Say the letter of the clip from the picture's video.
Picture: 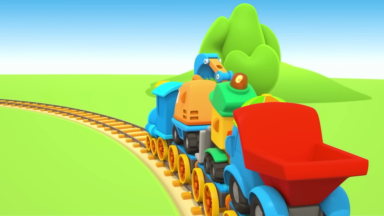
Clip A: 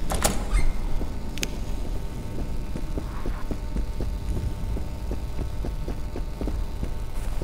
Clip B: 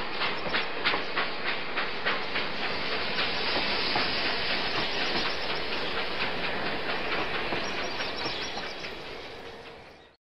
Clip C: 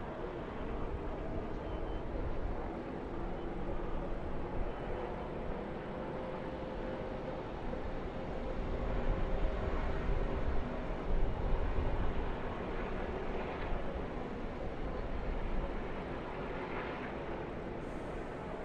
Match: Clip B